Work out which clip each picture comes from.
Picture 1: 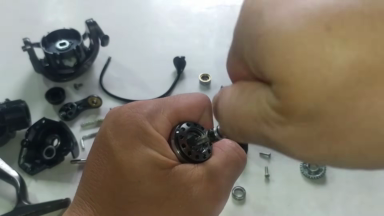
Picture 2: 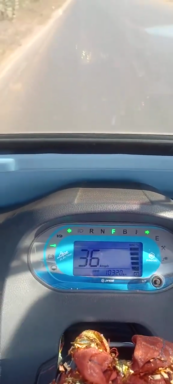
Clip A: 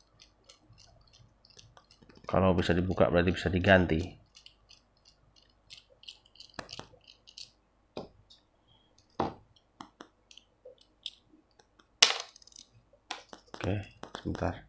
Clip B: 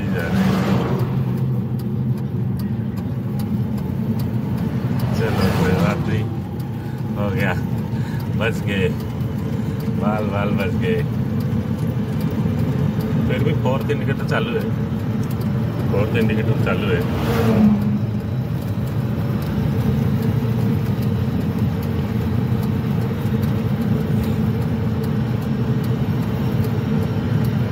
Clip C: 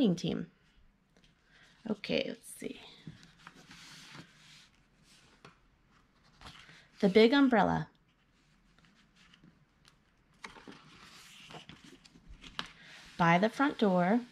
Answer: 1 A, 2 B